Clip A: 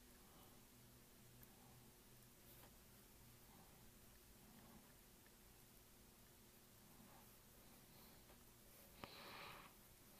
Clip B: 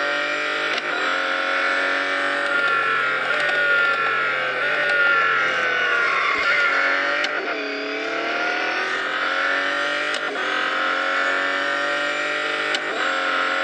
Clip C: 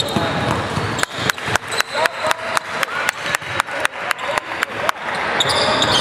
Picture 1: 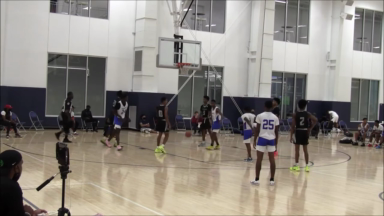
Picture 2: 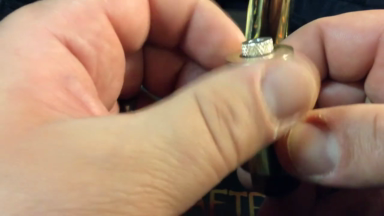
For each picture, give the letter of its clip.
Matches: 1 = C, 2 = A